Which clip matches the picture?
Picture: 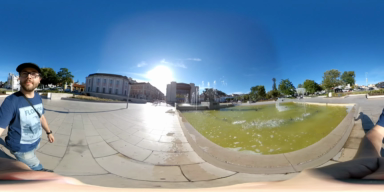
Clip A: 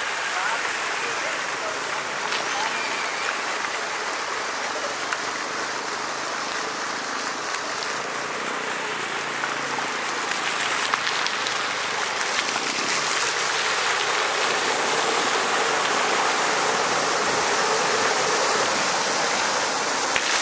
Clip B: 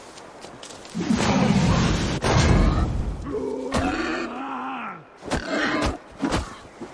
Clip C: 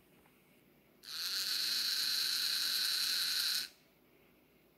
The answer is A